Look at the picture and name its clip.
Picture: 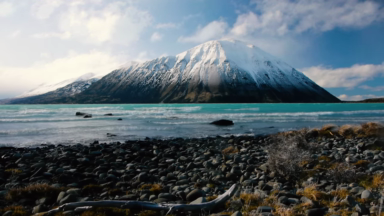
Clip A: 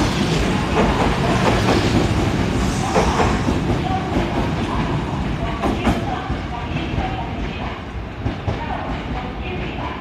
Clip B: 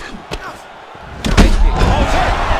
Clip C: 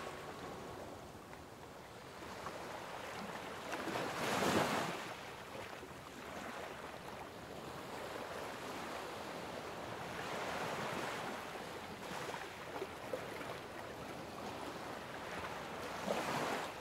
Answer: C